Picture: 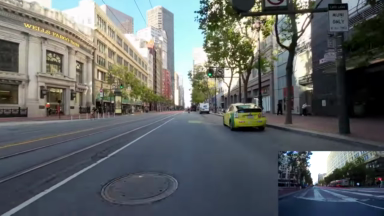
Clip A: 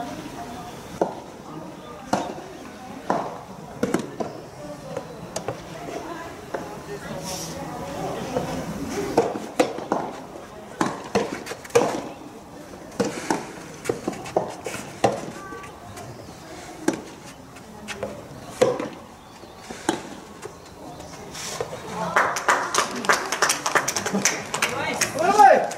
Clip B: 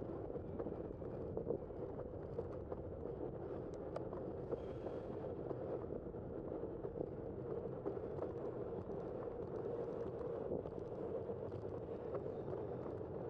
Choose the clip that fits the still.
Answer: B